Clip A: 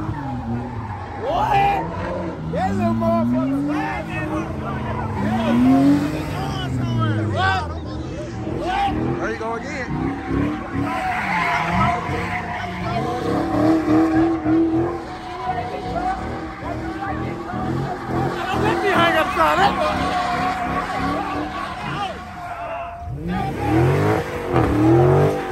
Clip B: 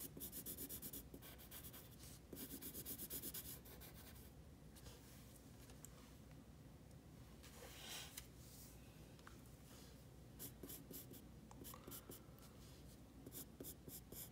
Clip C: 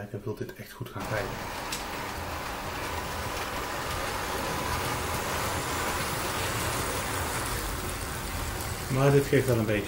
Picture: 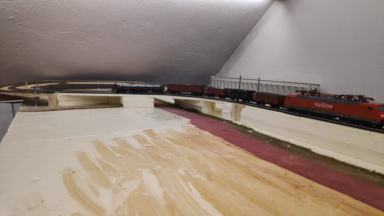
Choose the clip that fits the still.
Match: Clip C